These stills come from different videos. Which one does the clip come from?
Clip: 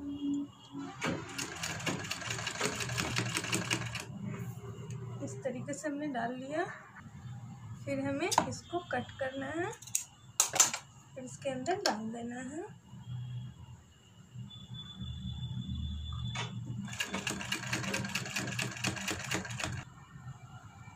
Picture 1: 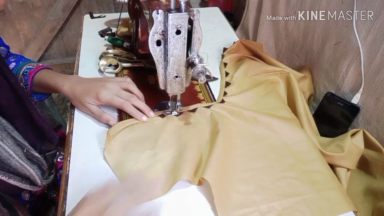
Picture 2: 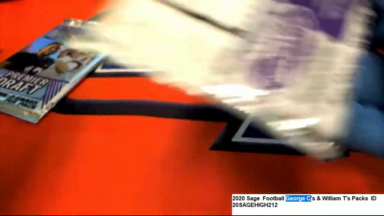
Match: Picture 1